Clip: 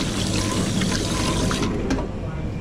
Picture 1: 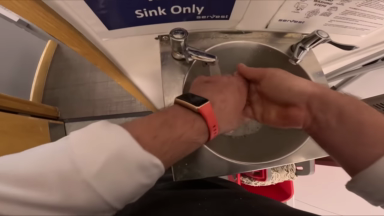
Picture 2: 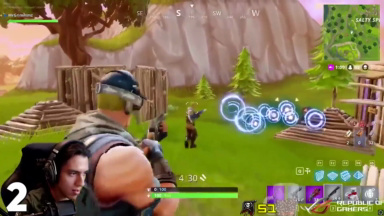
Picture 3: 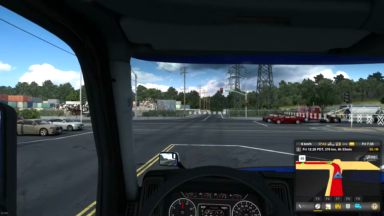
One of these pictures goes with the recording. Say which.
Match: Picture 1